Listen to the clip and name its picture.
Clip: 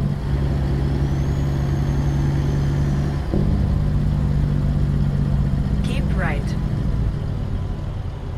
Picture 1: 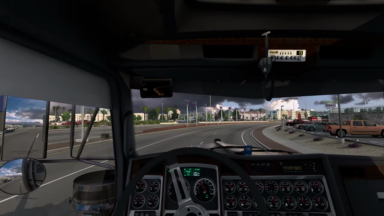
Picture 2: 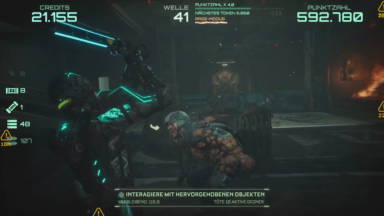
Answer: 1